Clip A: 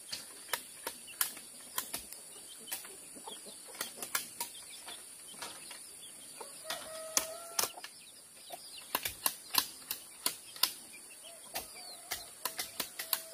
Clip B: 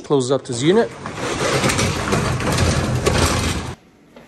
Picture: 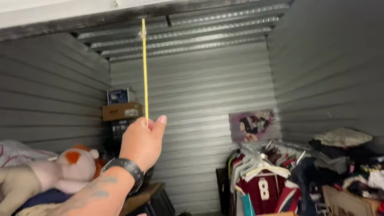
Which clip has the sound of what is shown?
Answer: B